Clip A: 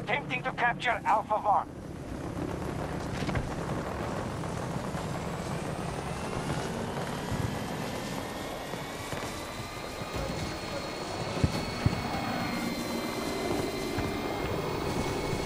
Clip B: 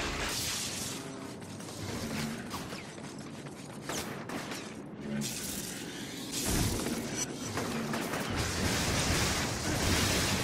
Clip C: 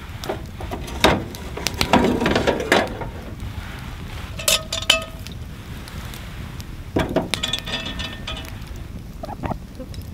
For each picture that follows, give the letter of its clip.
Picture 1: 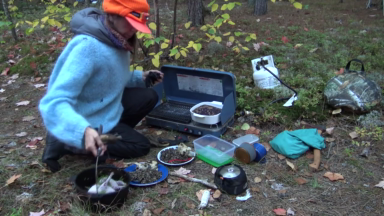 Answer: C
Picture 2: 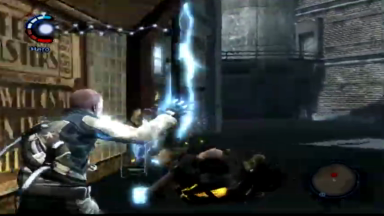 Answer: B